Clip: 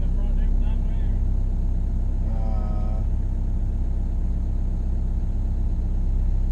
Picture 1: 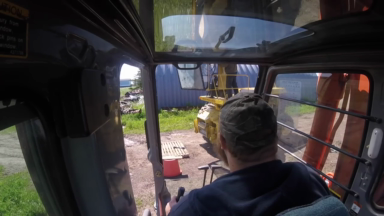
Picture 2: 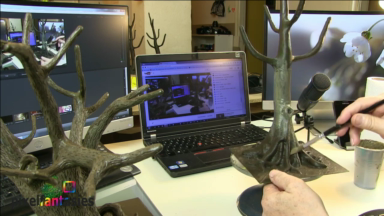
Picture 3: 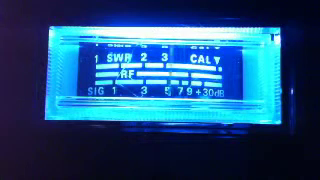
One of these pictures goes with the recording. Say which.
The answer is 1